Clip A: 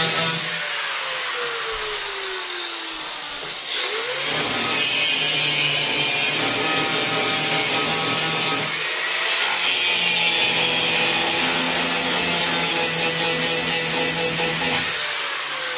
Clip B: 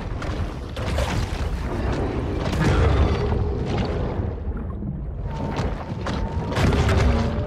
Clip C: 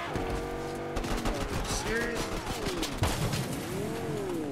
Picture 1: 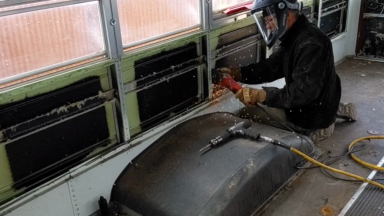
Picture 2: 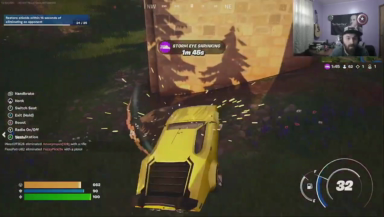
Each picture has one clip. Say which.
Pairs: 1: A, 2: C